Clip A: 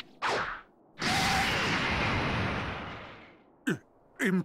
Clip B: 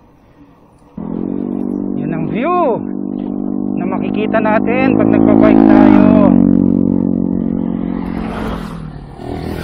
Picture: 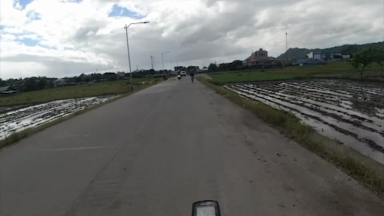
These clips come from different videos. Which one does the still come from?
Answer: B